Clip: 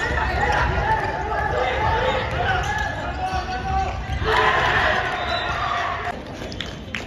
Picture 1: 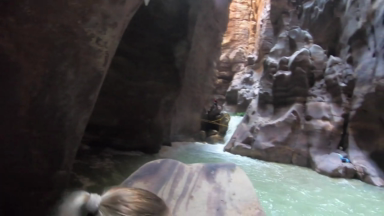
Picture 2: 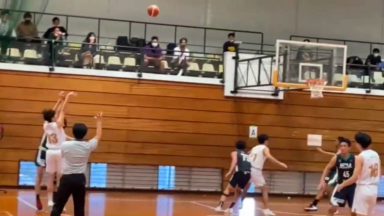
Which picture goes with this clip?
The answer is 2